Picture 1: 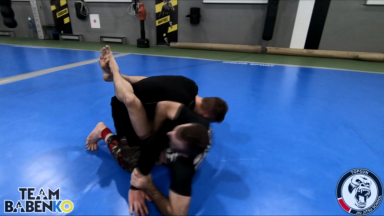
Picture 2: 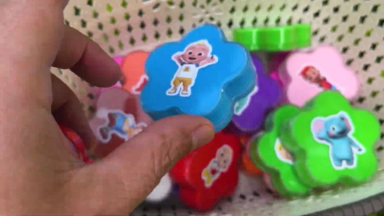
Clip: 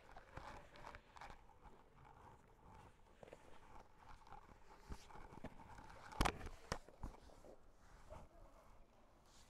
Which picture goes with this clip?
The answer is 1